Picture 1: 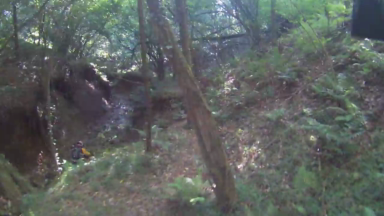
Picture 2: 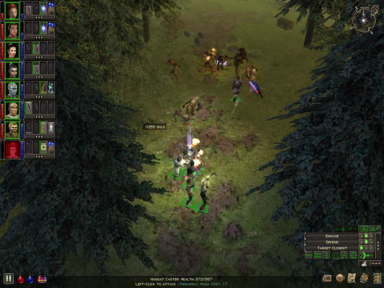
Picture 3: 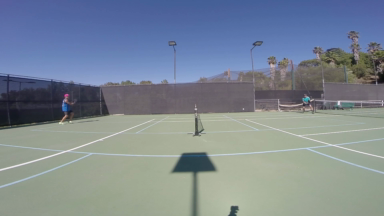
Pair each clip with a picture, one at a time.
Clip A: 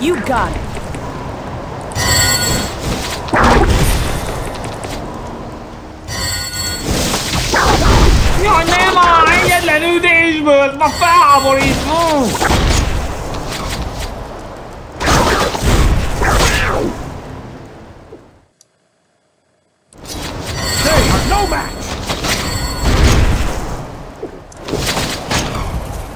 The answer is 2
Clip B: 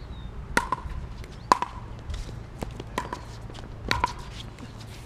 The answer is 3